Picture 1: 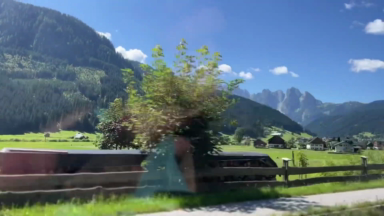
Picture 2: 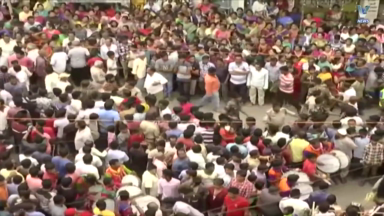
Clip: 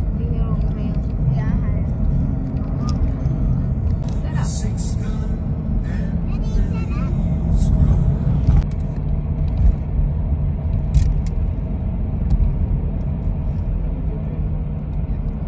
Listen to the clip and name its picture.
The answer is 1